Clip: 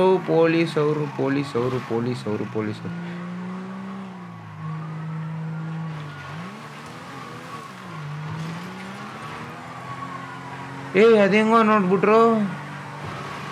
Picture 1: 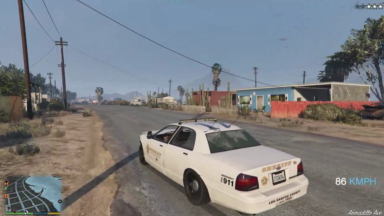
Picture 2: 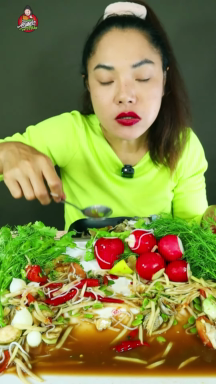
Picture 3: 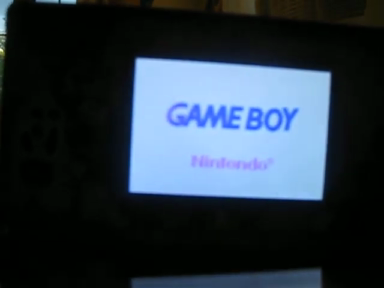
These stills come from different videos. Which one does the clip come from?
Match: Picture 1